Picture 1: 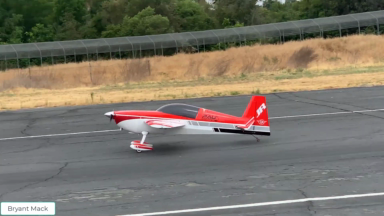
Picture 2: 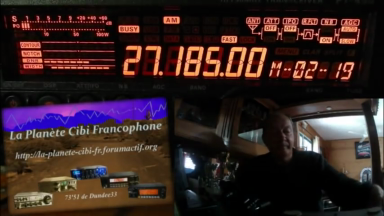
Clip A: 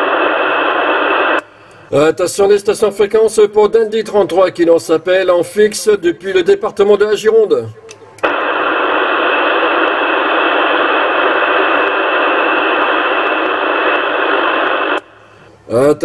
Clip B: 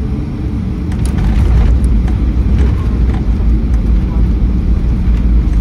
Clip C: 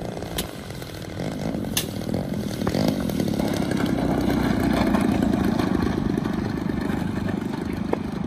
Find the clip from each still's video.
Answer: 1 C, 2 A